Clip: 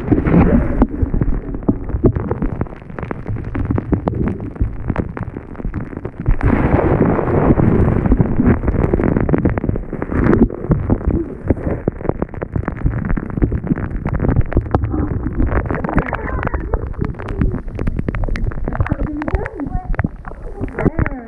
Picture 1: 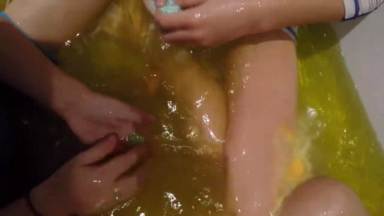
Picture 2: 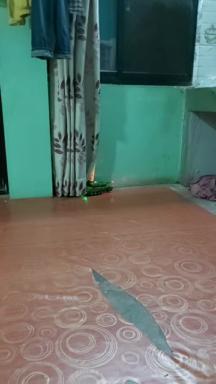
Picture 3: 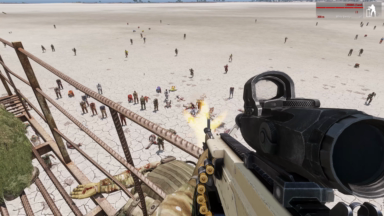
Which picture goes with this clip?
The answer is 1